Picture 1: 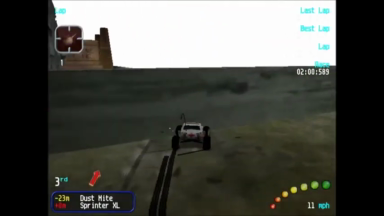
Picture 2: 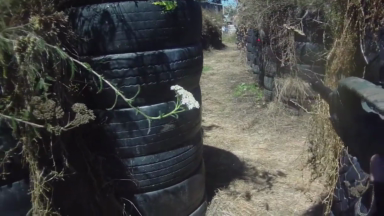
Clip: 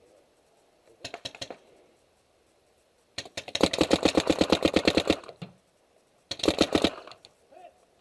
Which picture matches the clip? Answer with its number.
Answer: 2